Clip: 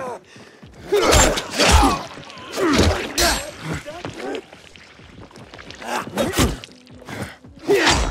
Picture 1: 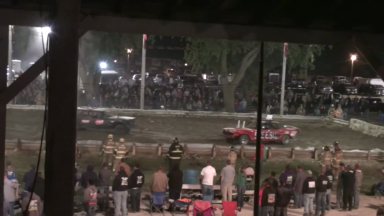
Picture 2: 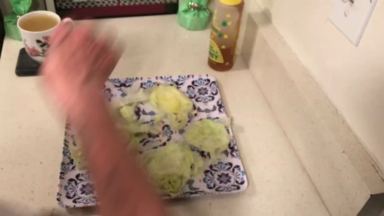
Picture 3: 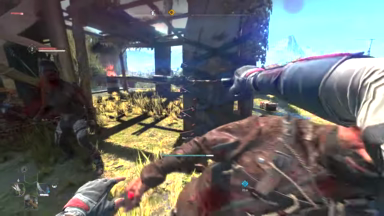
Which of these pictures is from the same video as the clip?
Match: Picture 3